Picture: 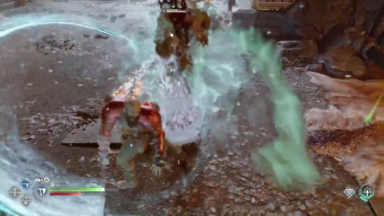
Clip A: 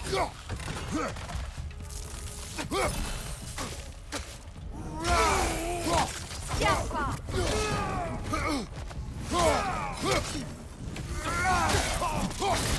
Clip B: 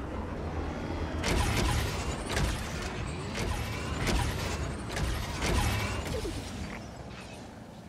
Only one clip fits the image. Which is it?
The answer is A